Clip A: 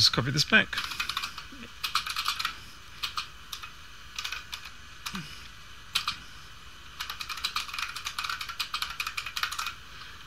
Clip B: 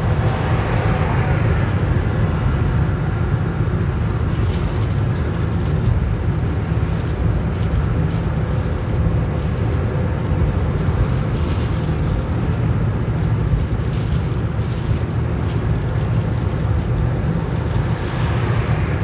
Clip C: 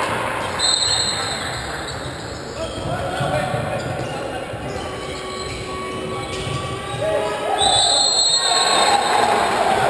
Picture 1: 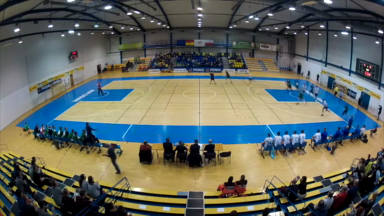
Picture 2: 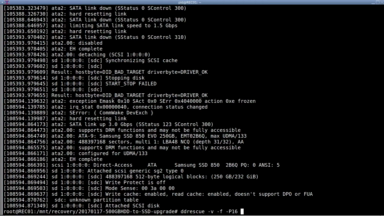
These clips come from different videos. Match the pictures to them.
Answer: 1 C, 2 A